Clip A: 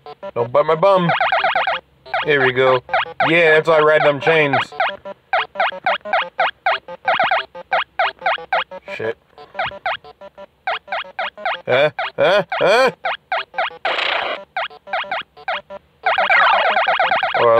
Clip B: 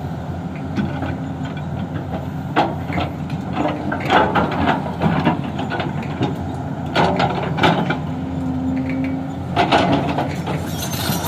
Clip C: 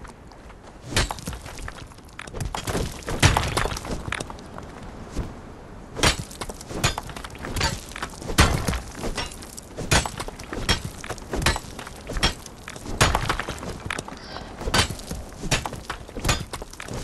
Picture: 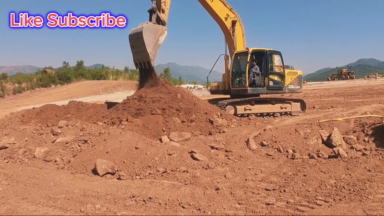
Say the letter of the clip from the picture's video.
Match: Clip B